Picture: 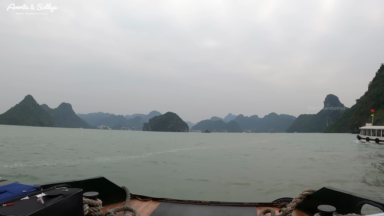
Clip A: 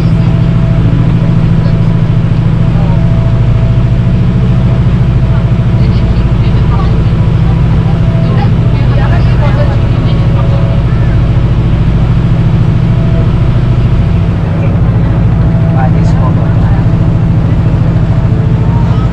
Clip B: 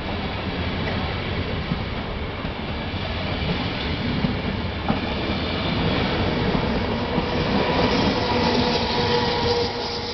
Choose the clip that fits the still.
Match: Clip A